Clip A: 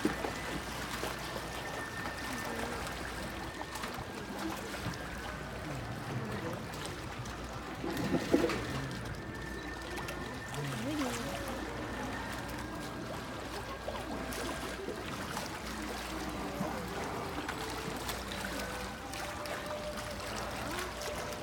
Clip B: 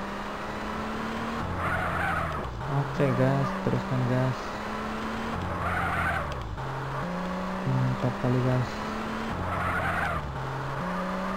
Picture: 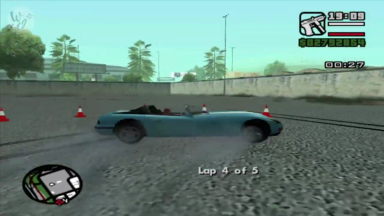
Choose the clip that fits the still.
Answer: B